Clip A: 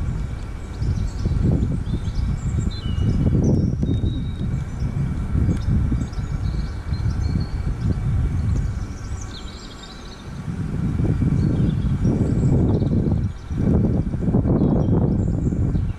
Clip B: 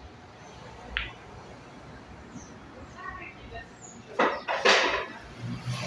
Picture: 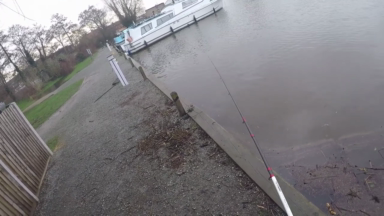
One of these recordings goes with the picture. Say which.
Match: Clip A